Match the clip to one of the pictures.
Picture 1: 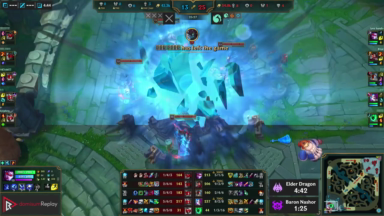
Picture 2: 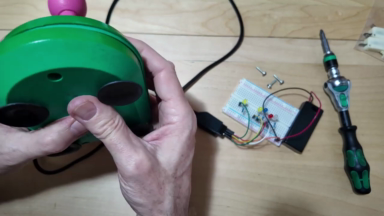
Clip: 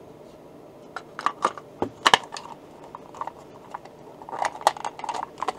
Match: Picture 2